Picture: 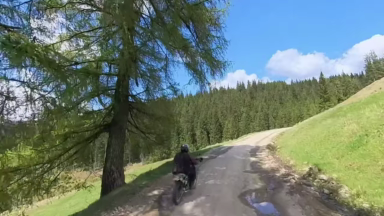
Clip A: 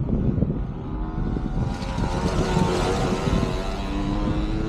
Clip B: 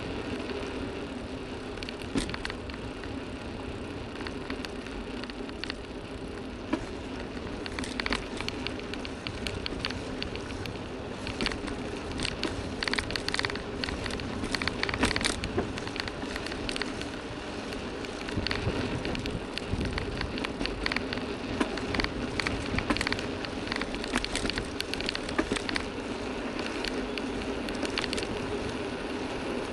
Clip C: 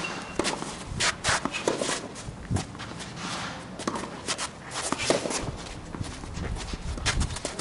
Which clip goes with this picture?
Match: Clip A